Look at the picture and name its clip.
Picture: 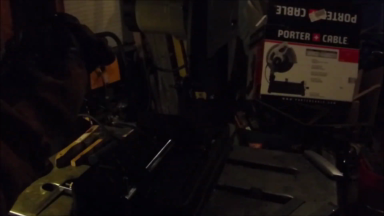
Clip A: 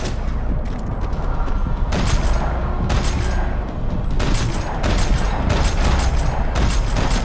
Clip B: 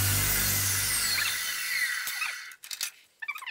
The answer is B